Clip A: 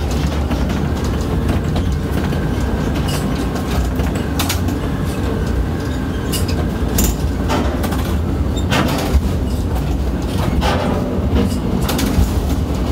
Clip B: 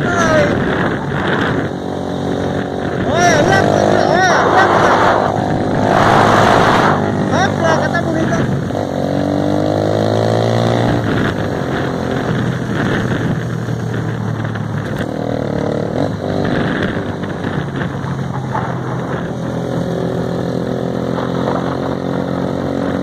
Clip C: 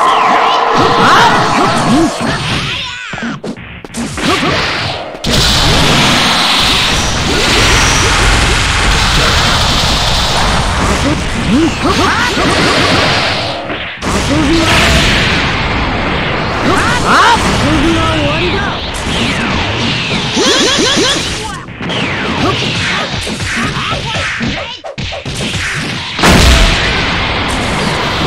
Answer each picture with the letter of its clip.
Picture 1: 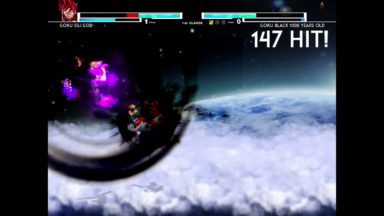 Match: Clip C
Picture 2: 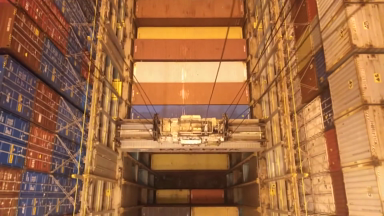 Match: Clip A